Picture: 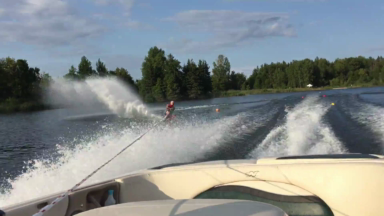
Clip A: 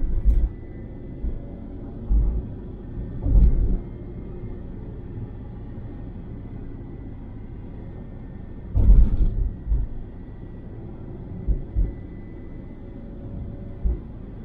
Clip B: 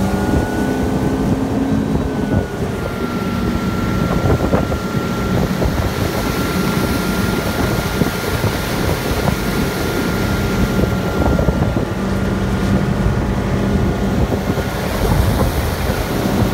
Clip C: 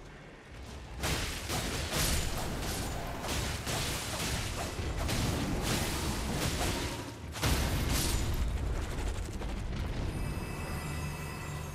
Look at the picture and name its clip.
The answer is B